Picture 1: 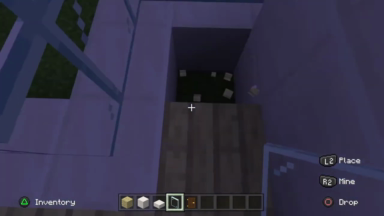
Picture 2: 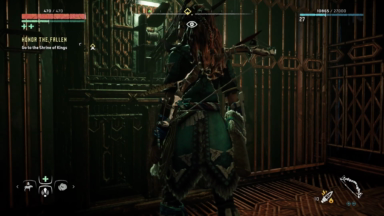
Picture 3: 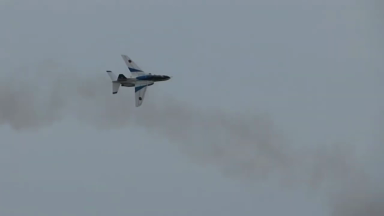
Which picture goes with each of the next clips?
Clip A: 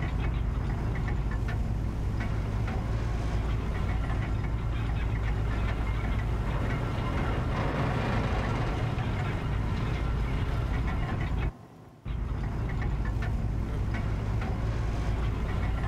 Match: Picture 2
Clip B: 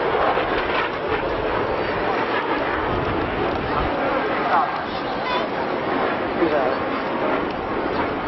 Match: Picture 3